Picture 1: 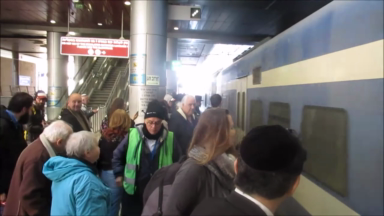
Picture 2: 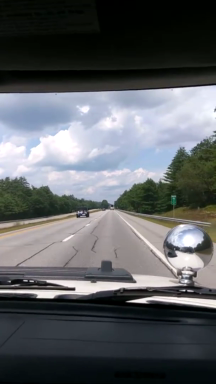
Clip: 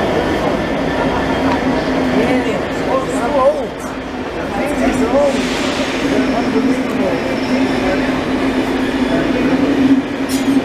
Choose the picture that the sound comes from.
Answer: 1